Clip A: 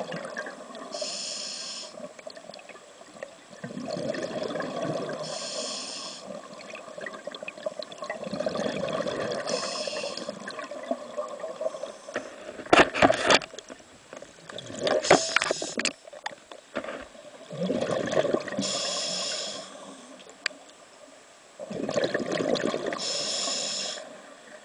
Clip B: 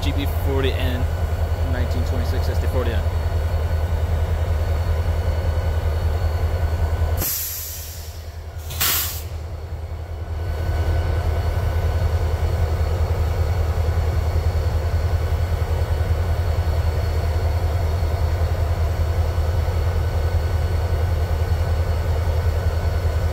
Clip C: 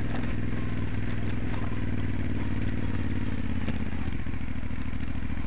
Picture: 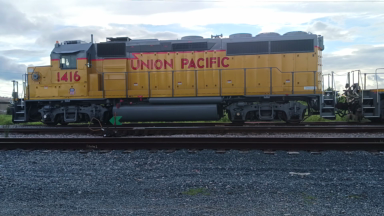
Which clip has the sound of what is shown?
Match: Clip B